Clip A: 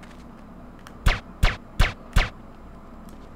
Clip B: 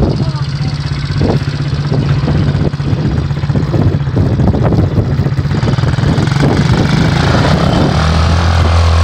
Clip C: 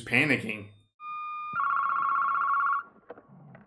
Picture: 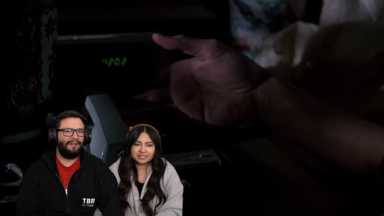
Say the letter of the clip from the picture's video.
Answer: C